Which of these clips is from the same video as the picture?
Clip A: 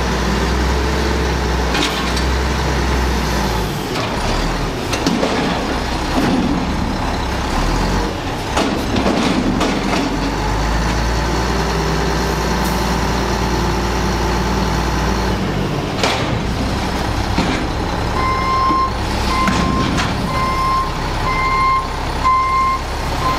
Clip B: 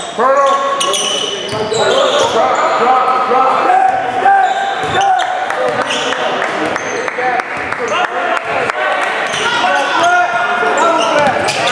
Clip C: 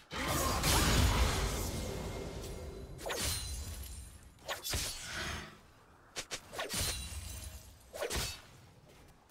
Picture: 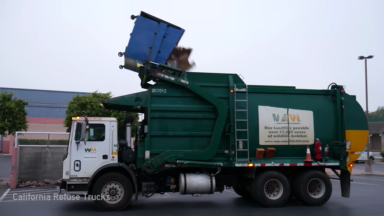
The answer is A